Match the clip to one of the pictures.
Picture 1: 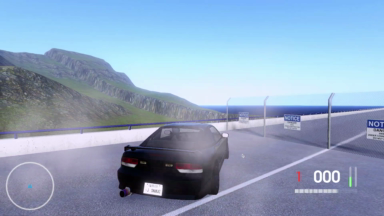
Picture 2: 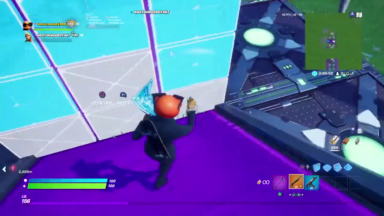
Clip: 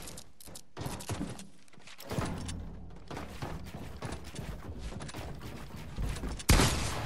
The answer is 2